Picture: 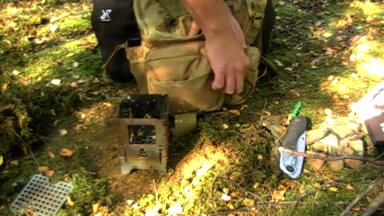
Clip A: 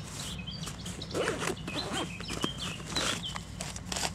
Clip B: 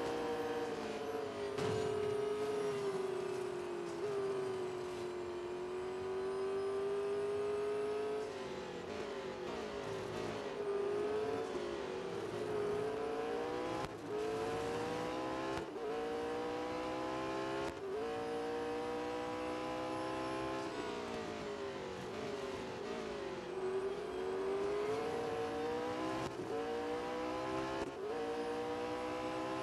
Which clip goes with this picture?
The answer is A